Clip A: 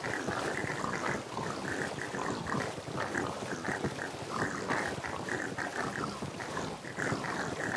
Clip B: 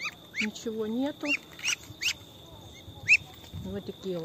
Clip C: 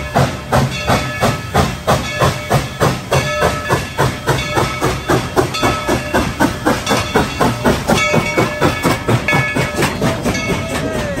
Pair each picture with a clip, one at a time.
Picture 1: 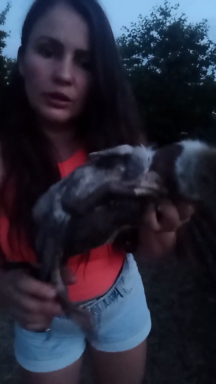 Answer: B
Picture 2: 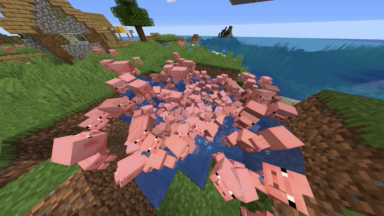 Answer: A